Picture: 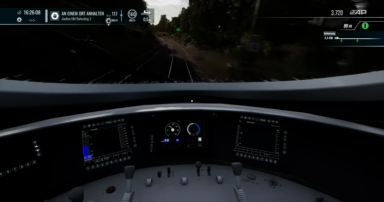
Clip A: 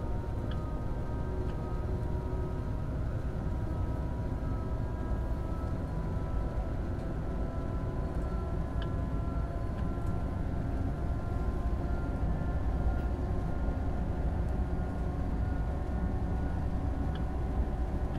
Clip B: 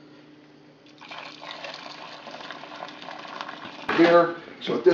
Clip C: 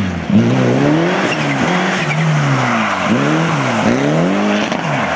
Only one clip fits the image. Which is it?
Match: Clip A